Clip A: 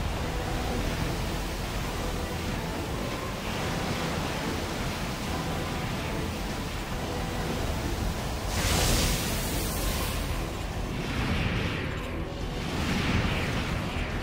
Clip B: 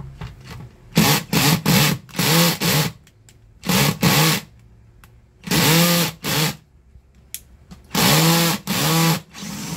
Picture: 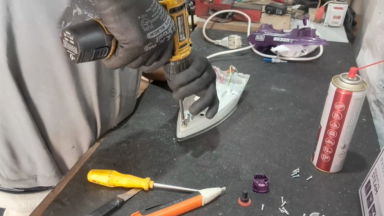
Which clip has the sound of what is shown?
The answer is B